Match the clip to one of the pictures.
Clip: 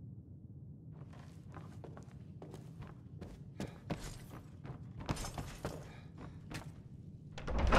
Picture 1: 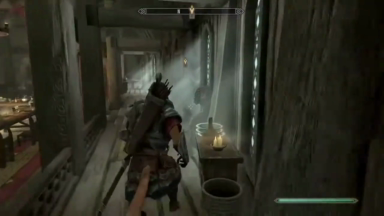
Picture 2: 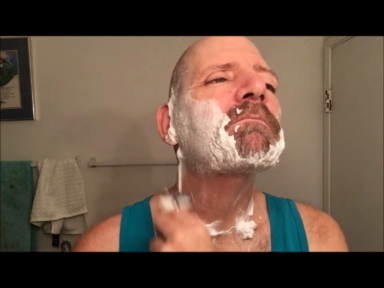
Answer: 1